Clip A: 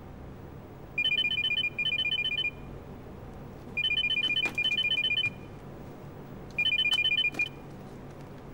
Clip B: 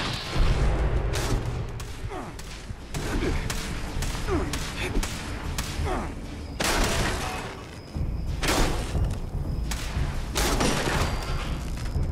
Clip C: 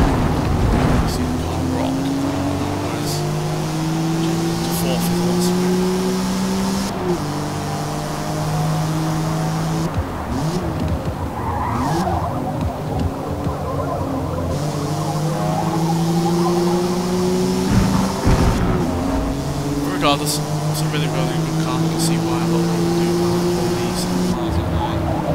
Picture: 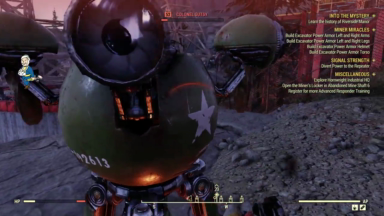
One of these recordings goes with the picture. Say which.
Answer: B